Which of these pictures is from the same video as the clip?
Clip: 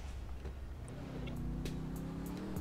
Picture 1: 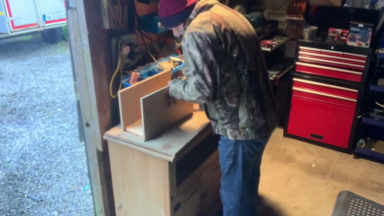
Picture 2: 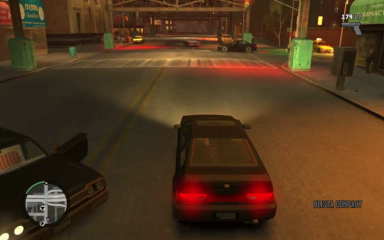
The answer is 2